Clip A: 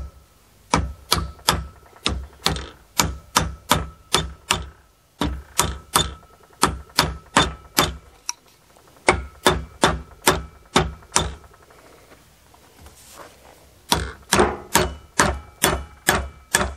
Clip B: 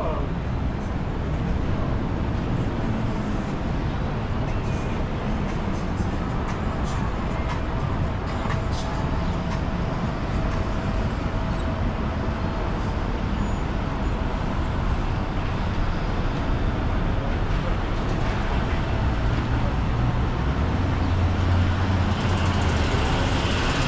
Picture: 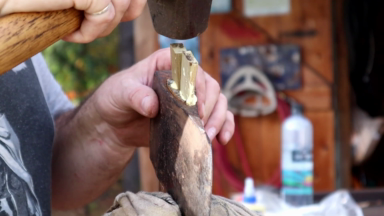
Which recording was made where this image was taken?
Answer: A